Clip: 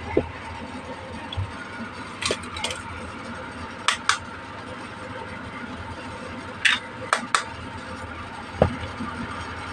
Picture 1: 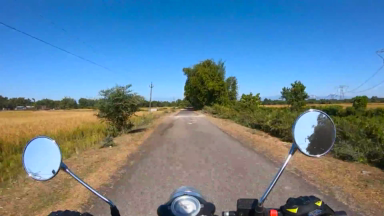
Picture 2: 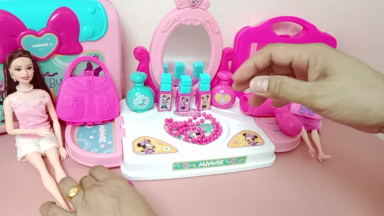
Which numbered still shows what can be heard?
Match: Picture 2